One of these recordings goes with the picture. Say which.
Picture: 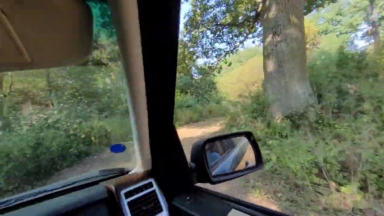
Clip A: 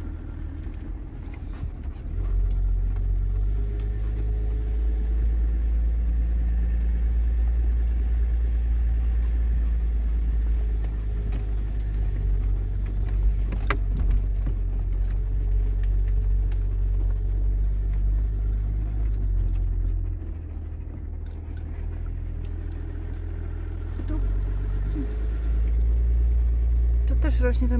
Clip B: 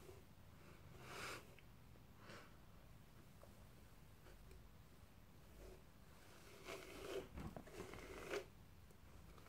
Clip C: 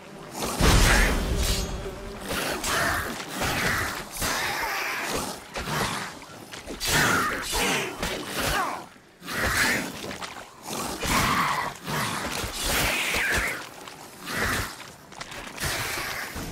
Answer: A